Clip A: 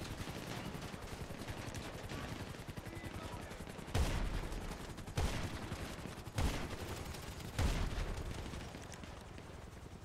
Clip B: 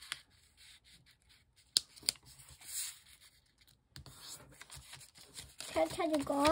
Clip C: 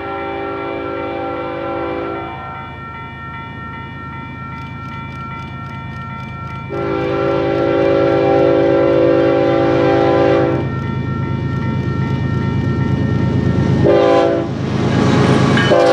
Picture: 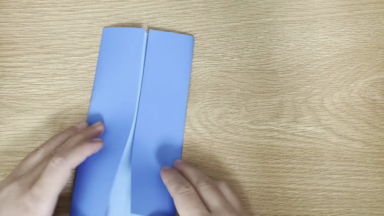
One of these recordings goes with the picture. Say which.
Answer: B